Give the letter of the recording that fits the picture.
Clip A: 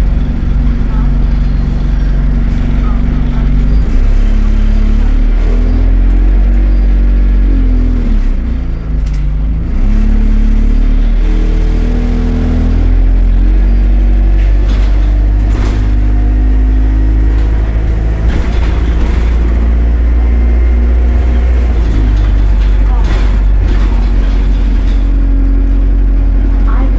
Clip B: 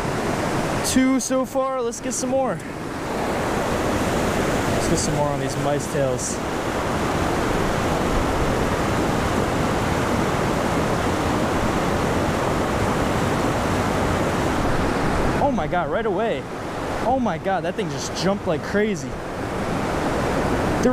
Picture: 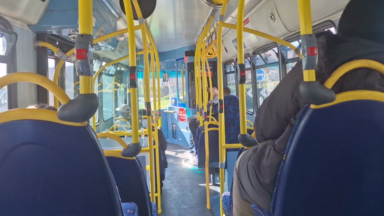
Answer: A